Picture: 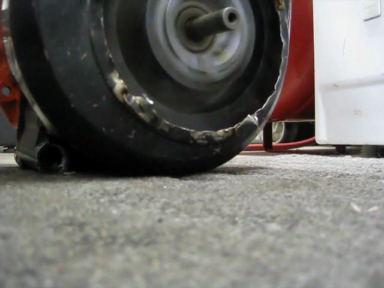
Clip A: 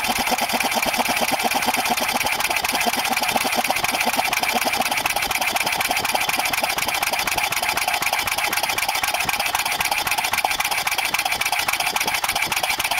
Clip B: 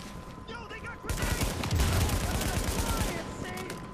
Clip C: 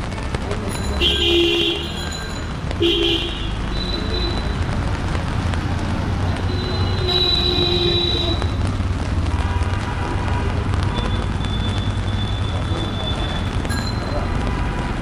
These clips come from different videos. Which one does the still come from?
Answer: A